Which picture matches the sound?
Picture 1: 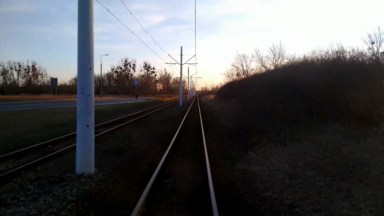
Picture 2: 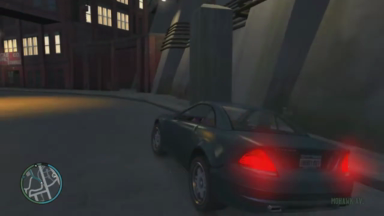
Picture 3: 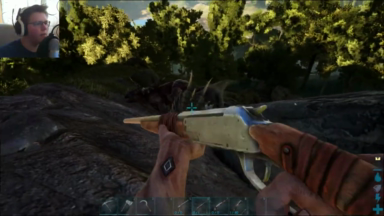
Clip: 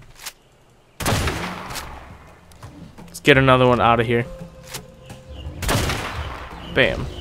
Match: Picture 3